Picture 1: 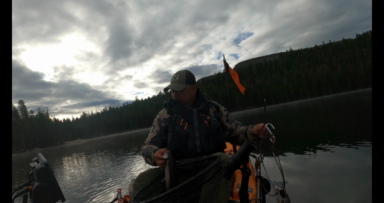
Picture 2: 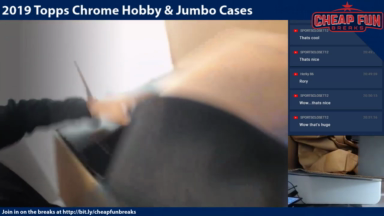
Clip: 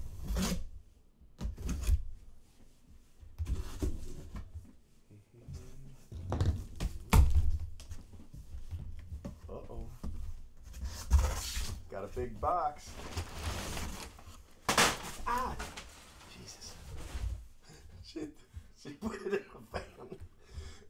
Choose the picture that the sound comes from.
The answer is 2